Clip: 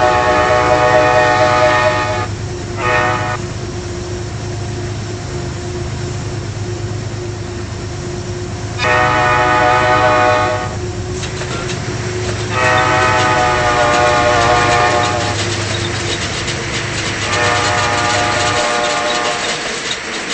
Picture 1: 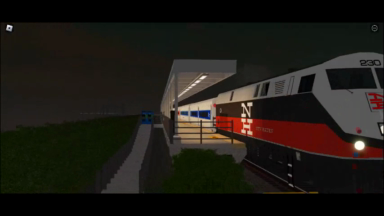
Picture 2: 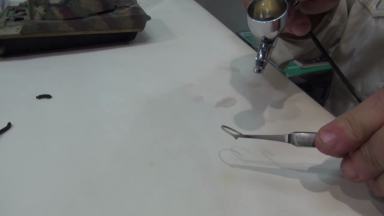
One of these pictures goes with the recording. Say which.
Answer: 1